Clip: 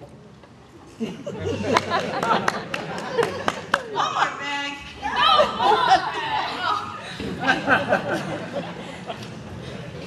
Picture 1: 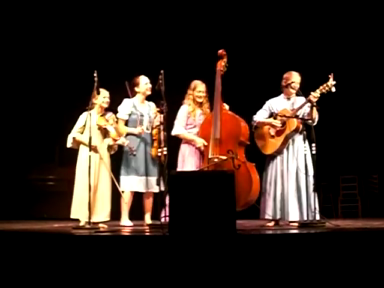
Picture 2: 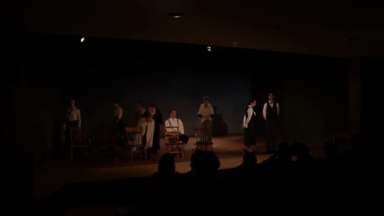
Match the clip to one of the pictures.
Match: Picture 1